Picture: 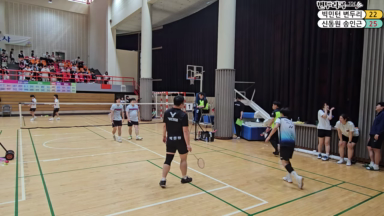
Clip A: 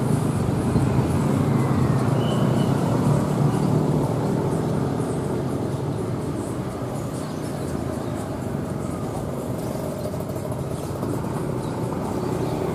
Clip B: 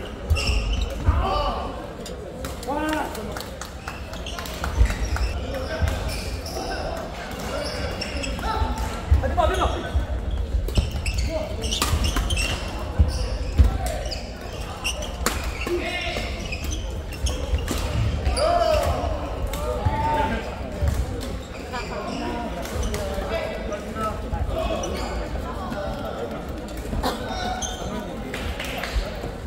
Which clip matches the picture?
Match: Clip B